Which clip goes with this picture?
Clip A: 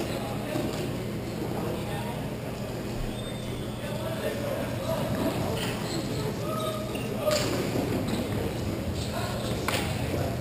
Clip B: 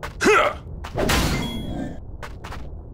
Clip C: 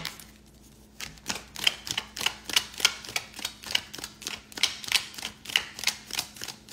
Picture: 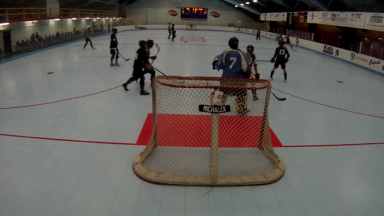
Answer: A